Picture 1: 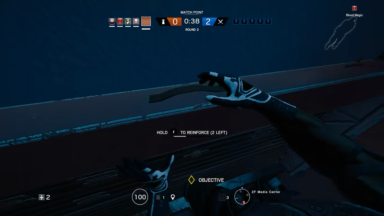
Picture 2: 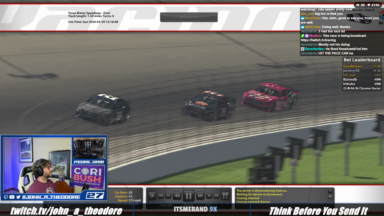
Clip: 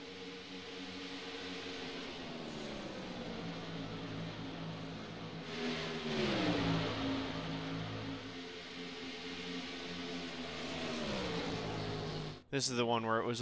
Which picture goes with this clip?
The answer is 2